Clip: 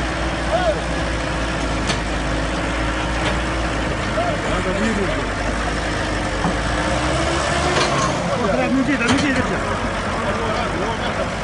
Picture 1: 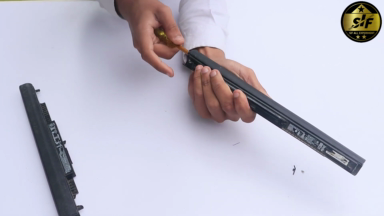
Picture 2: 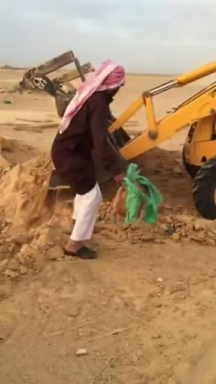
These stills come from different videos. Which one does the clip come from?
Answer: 2